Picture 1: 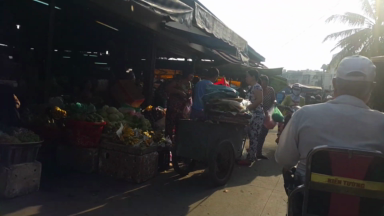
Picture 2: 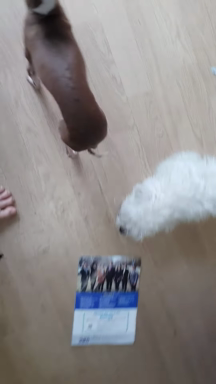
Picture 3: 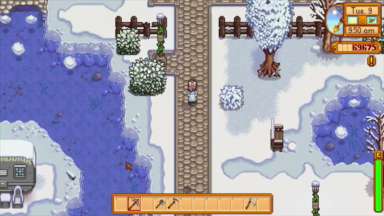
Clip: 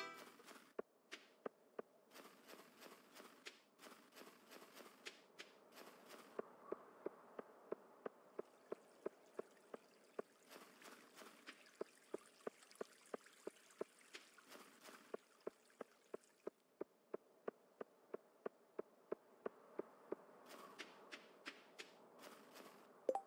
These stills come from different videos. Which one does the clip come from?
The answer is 3